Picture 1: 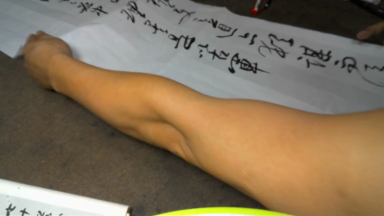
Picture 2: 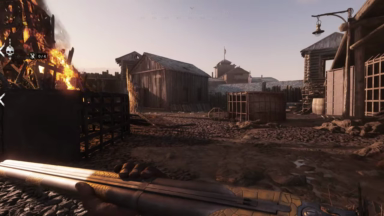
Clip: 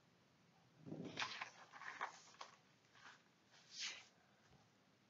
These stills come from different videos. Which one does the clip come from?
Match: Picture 1